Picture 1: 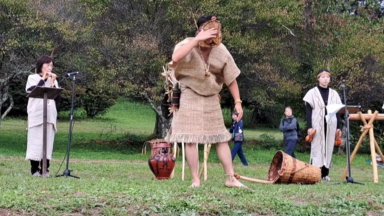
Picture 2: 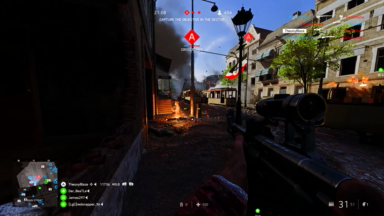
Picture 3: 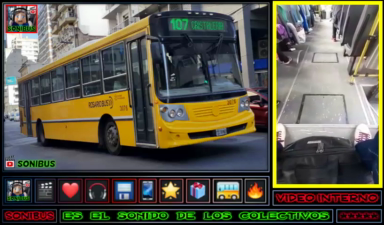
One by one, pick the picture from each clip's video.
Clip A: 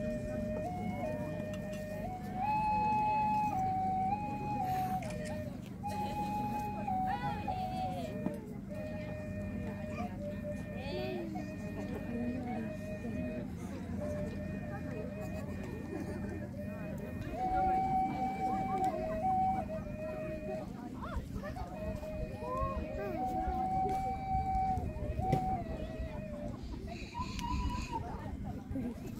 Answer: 1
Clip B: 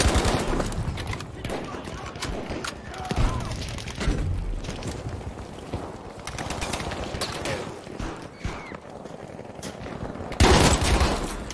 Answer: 2